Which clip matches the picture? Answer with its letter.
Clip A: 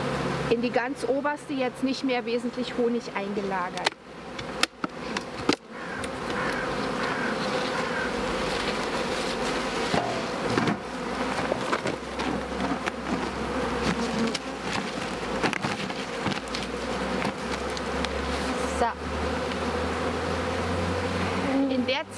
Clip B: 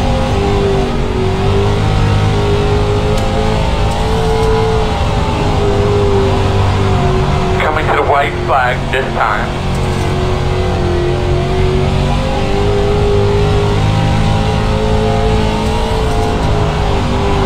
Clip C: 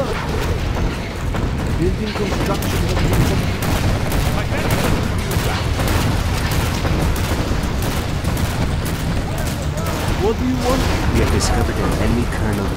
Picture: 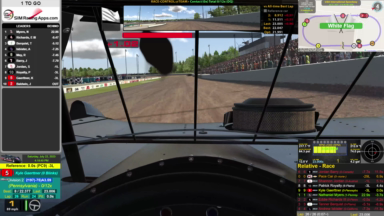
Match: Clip B